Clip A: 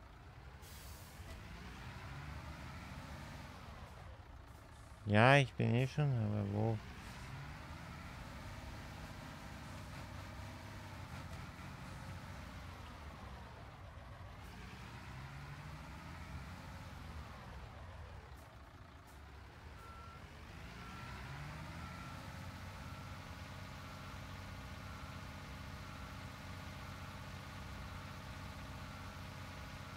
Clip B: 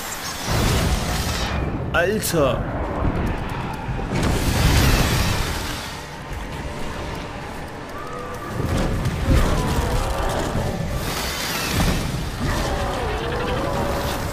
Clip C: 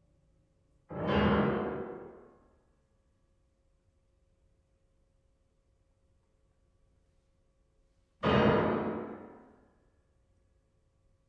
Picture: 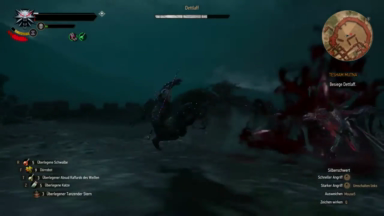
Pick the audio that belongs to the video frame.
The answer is B